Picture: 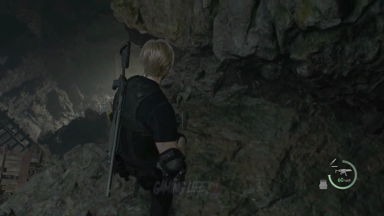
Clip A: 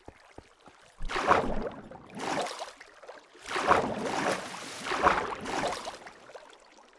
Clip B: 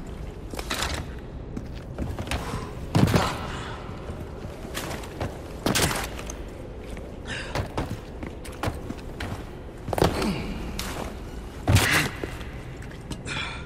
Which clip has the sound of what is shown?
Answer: B